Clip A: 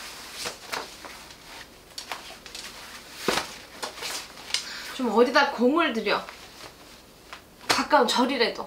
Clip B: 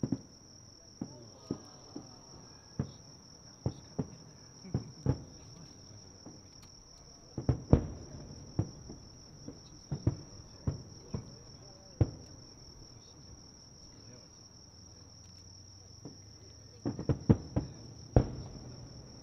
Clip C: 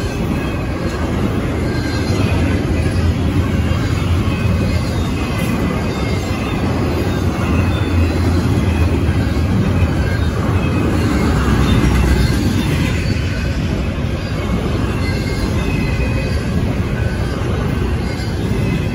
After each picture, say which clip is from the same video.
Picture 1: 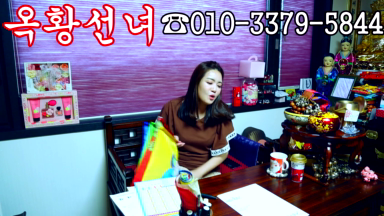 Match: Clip A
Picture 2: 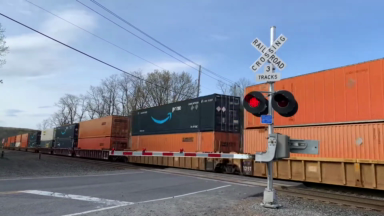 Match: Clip C